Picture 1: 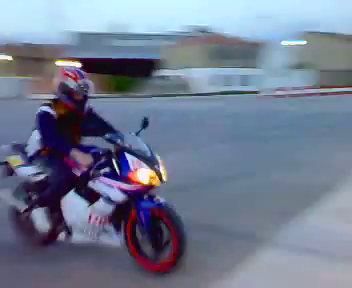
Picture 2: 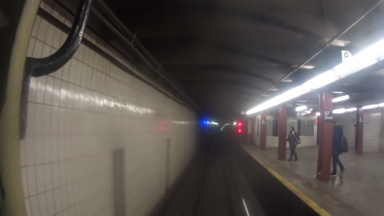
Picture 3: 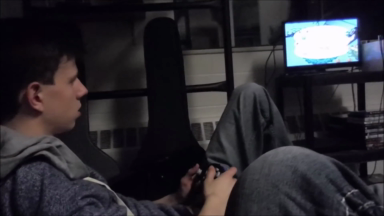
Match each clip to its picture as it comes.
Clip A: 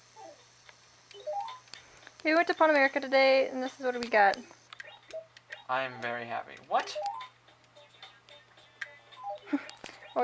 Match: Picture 3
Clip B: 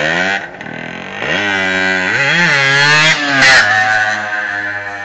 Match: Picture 1